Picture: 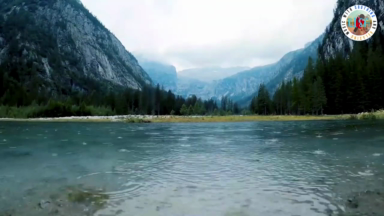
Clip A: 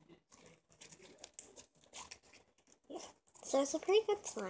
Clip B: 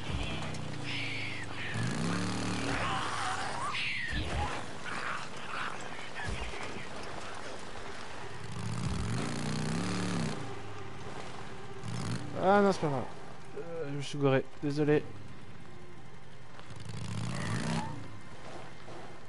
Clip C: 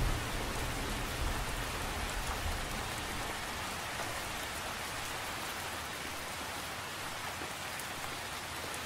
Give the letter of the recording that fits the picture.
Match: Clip C